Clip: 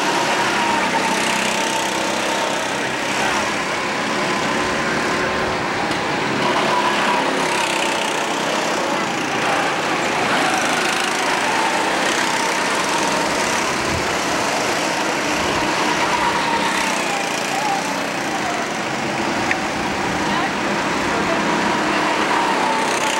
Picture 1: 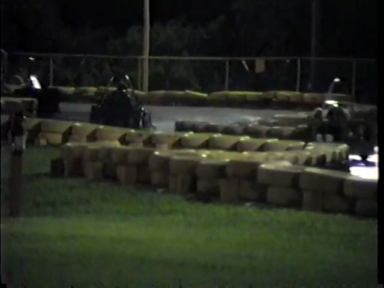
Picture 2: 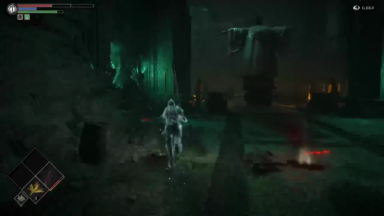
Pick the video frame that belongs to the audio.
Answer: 1